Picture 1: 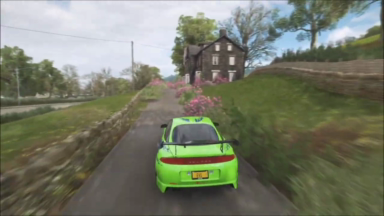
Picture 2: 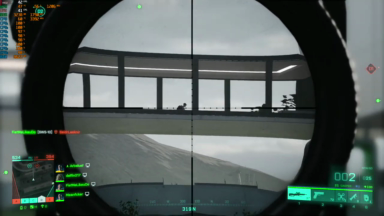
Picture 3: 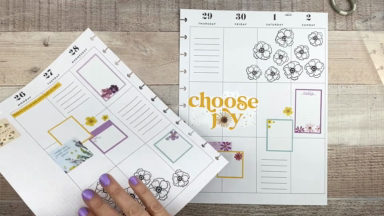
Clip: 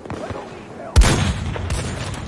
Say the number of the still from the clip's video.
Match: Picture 2